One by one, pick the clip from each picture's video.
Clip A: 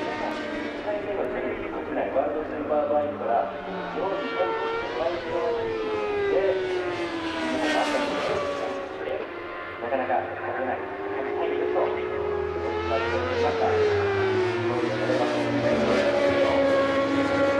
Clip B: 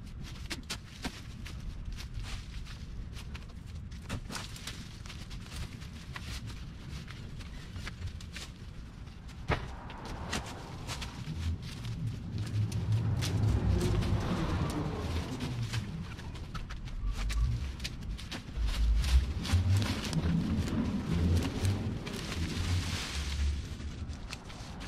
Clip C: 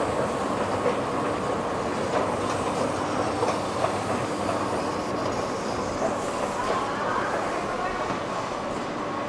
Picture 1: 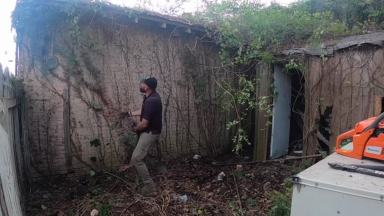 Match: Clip B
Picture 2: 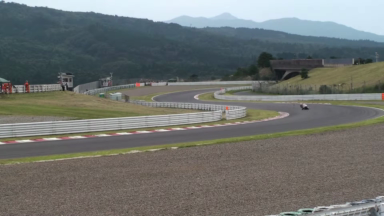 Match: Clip A